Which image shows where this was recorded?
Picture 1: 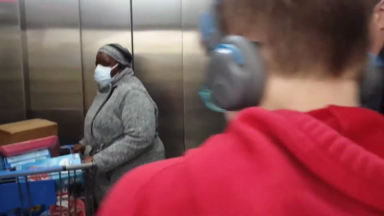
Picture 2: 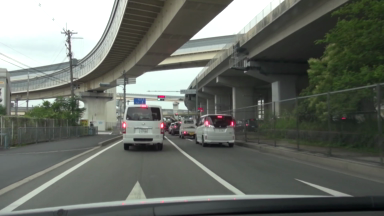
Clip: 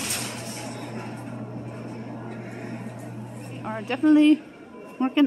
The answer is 1